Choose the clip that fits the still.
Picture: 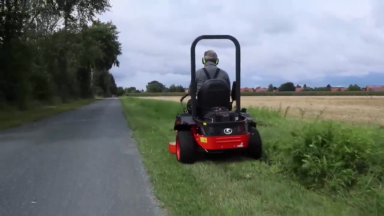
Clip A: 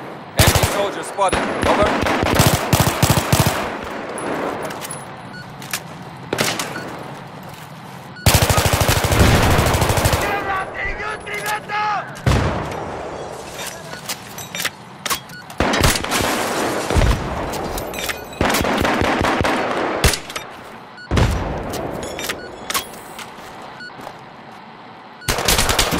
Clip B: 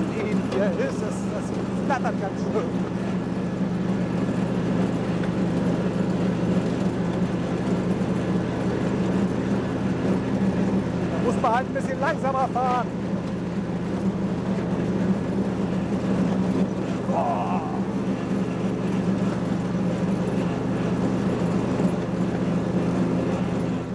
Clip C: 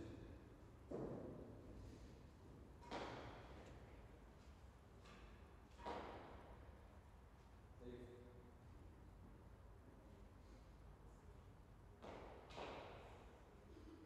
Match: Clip B